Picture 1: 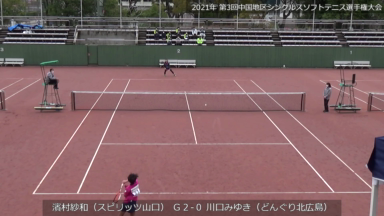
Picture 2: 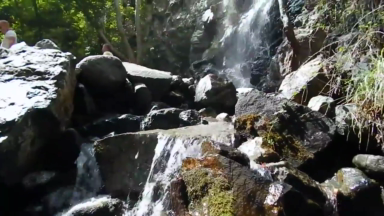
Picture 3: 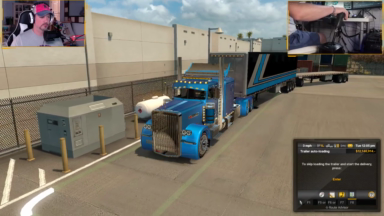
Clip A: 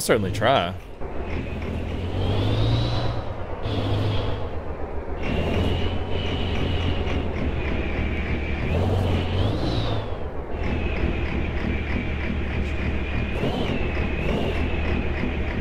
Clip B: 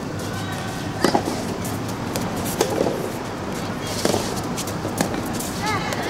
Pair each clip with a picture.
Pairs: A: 3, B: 1